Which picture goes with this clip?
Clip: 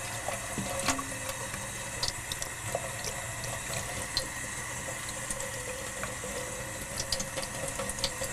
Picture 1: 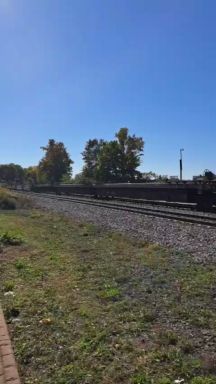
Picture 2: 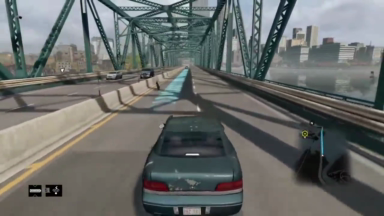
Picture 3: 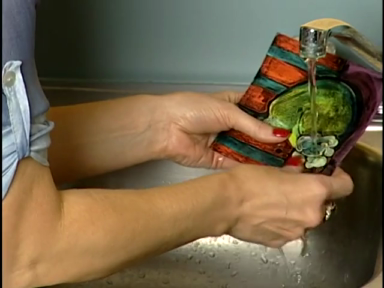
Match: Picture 3